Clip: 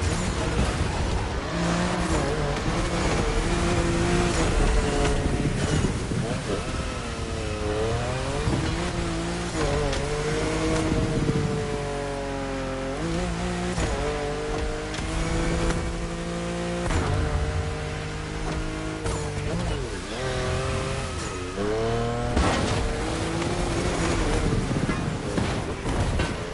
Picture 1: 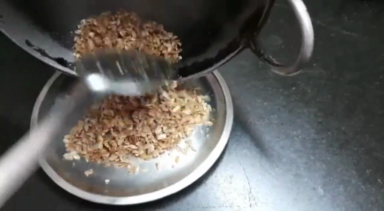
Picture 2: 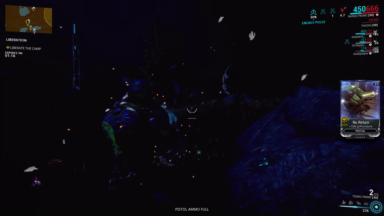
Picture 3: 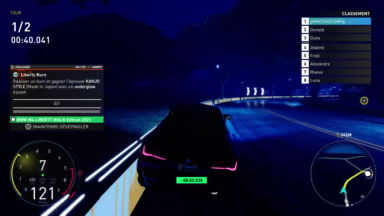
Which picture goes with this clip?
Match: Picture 3